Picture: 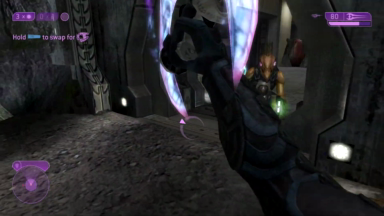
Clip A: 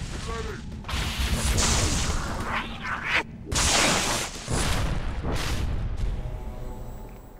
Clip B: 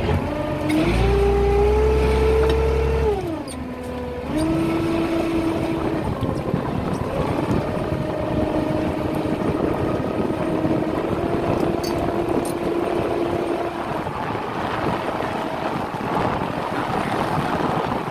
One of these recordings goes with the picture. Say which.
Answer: A